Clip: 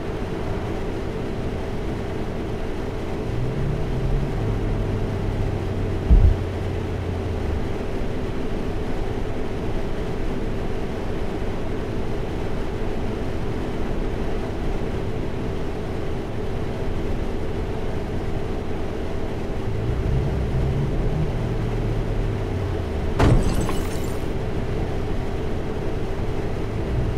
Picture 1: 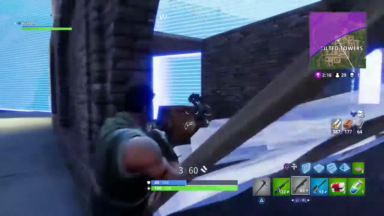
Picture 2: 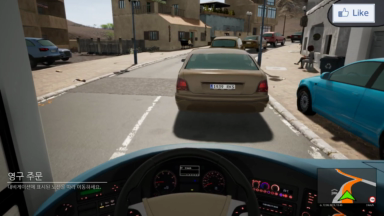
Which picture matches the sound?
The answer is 2